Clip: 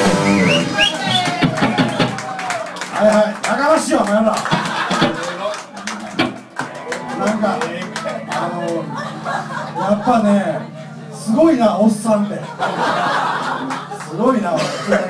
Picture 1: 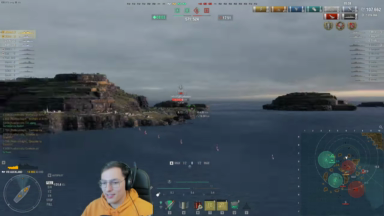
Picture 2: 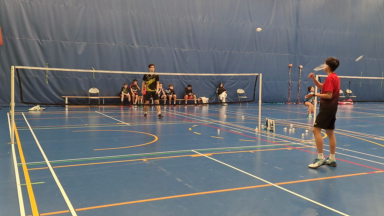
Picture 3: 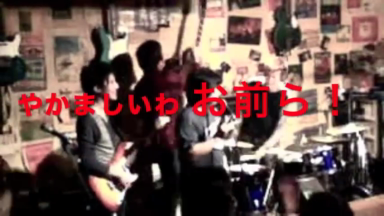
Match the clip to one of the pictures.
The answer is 3